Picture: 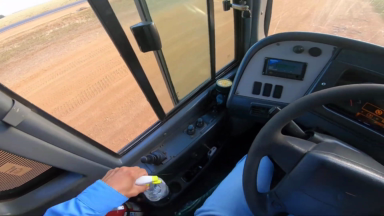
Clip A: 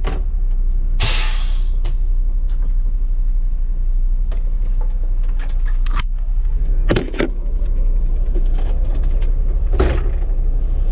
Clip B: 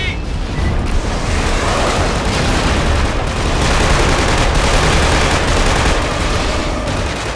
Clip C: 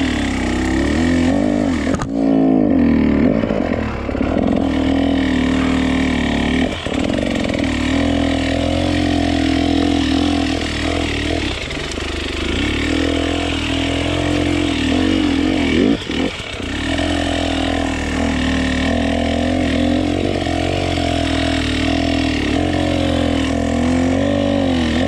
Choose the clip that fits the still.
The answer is A